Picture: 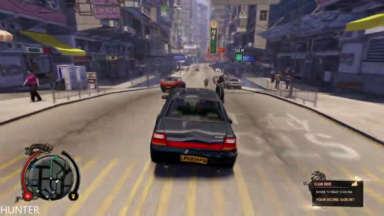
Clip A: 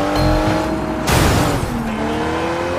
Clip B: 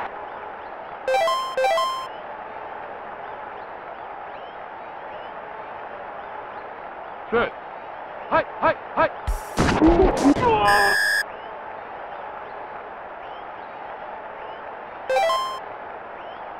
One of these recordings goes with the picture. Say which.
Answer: A